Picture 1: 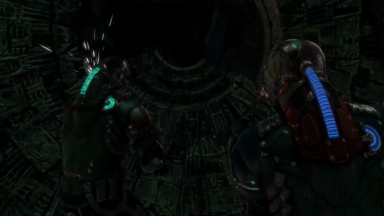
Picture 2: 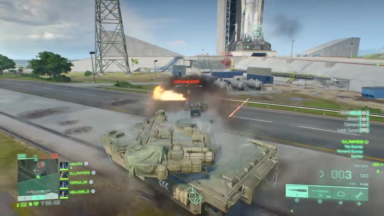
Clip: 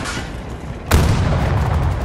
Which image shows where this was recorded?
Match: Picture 2